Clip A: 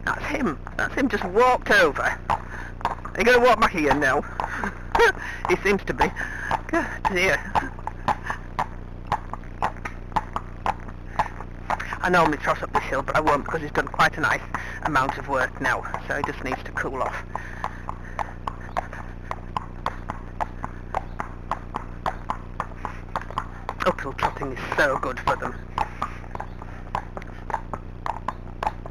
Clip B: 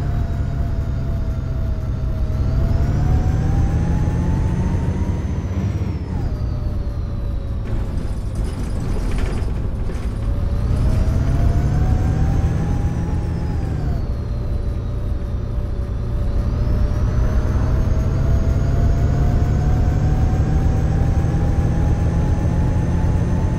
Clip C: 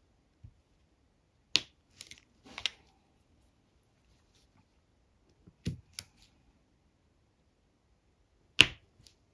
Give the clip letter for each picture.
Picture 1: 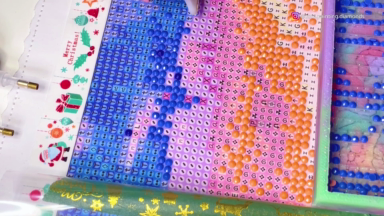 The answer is C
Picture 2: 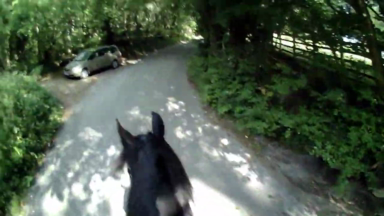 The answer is A